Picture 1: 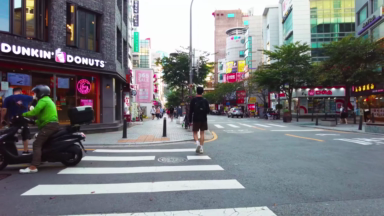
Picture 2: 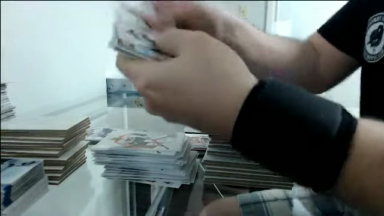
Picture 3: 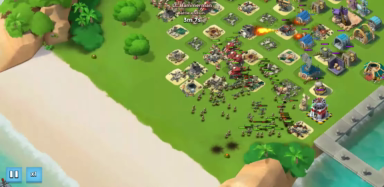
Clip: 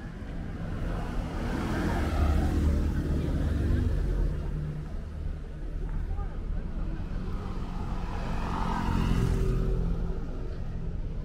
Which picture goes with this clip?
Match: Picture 1